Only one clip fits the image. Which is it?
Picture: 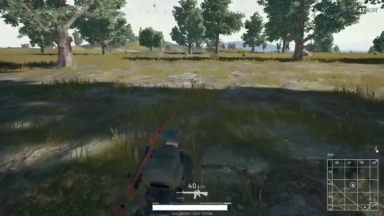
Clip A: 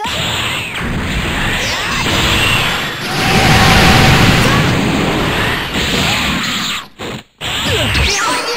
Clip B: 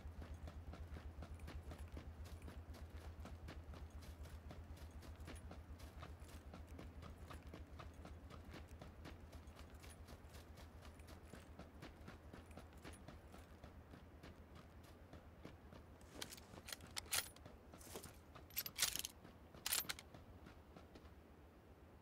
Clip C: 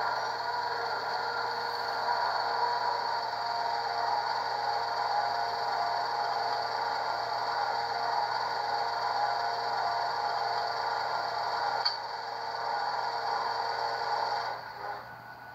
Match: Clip B